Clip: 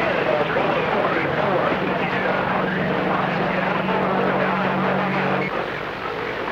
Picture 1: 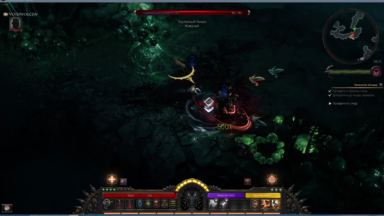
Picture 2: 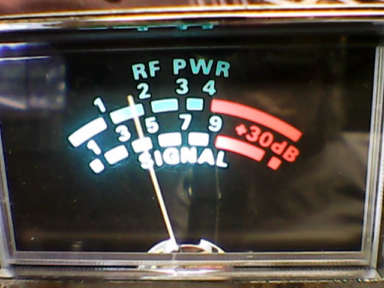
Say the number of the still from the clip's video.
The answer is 2